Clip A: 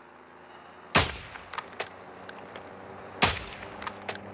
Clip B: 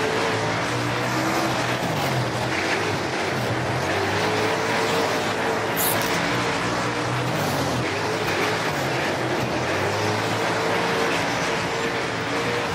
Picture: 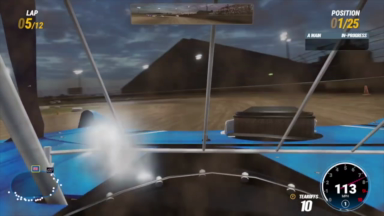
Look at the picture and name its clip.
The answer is B